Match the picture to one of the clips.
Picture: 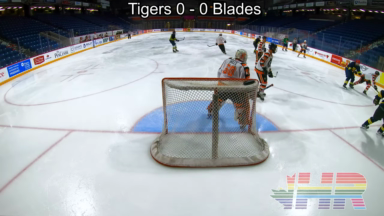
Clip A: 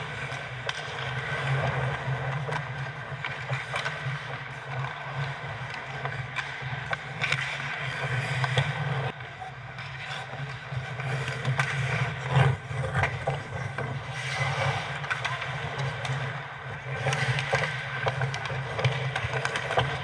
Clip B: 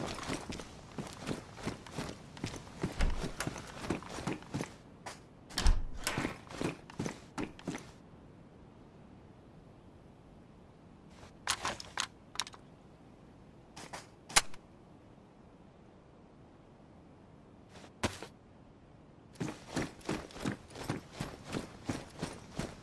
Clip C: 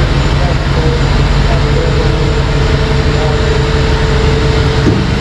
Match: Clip A